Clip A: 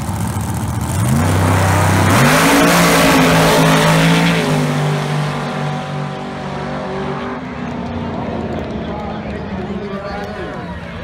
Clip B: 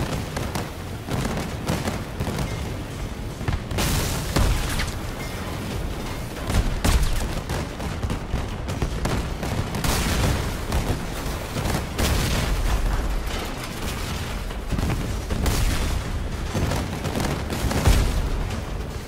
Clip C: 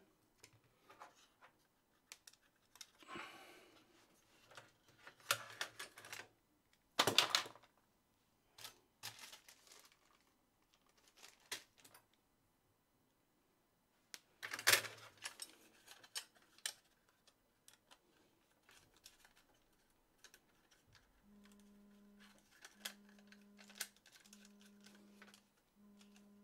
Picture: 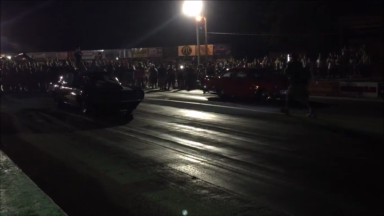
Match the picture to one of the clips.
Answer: A